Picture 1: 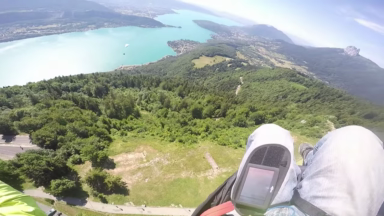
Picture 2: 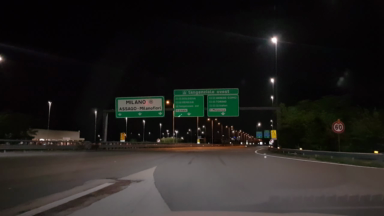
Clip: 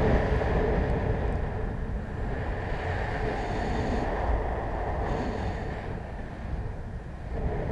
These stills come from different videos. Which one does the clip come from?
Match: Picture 1